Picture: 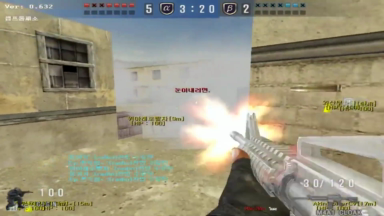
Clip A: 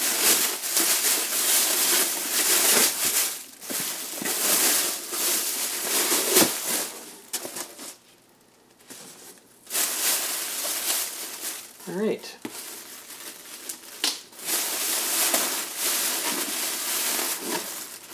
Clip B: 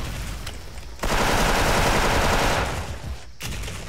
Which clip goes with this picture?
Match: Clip B